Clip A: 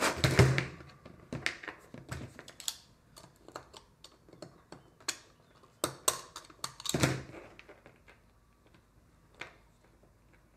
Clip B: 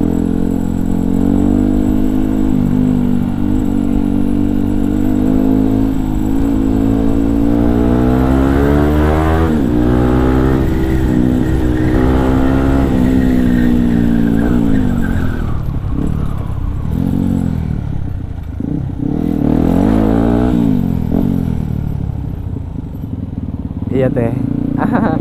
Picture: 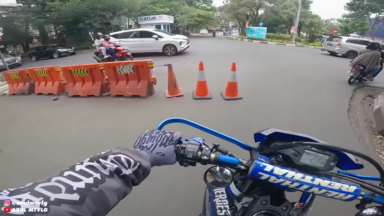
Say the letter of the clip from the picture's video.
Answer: B